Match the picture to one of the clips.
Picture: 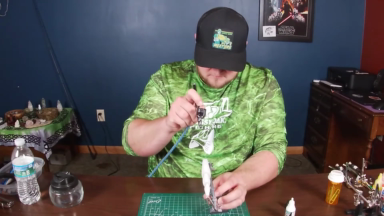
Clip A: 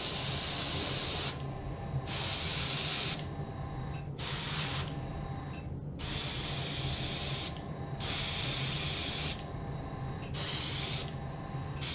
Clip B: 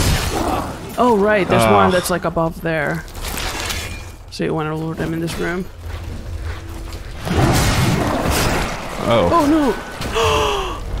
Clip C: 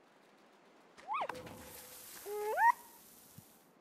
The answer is A